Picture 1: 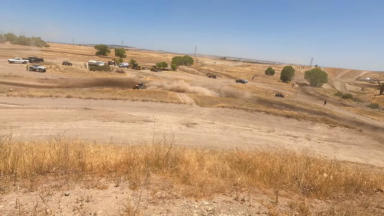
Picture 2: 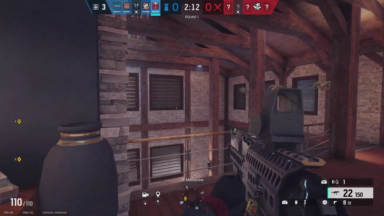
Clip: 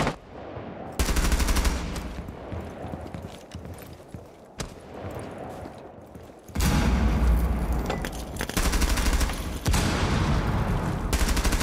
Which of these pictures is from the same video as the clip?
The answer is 2